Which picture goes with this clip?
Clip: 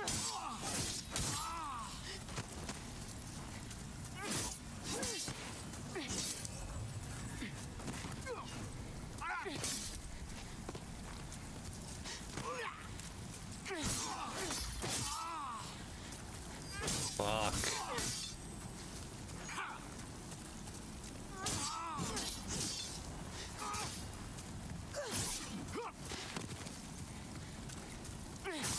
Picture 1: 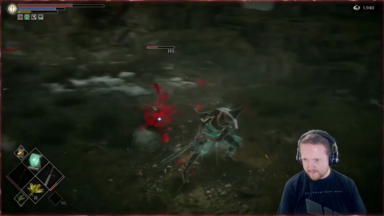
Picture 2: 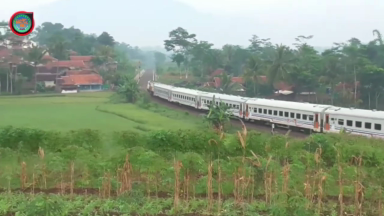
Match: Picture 1